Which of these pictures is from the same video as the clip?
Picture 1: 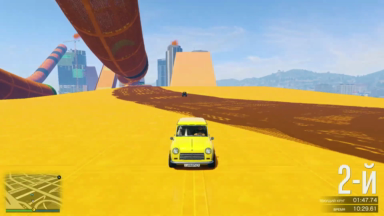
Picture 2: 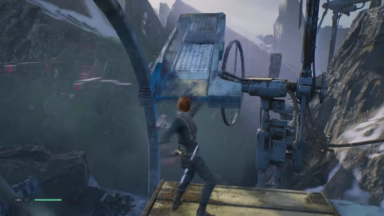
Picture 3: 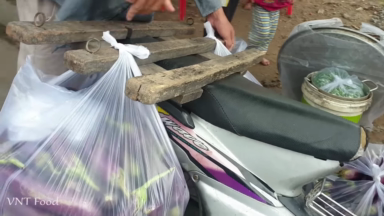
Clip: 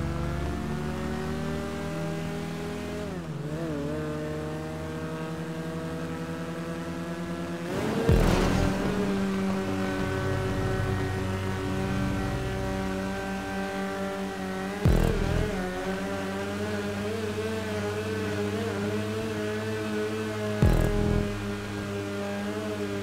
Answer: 1